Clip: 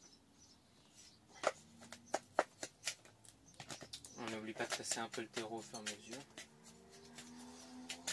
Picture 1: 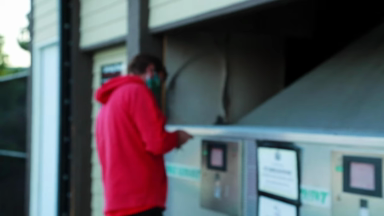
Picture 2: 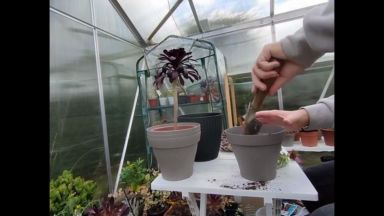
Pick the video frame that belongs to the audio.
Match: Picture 2